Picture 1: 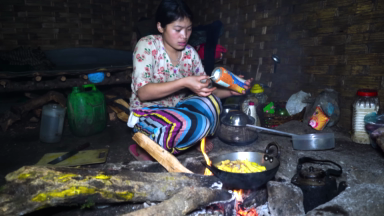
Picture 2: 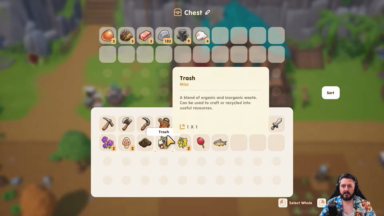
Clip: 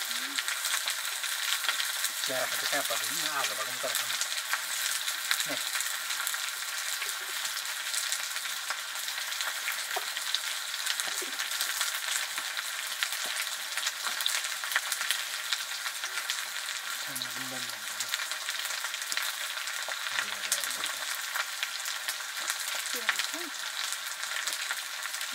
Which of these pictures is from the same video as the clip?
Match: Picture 1